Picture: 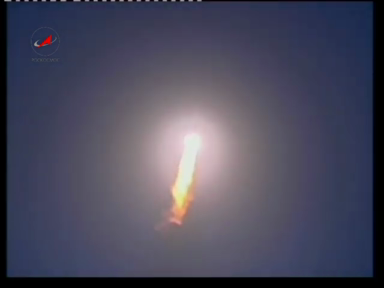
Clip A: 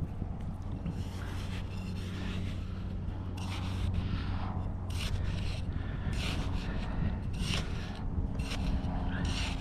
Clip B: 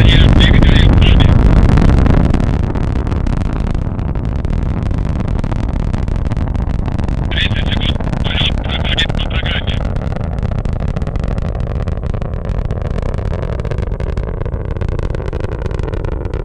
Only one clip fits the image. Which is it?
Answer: B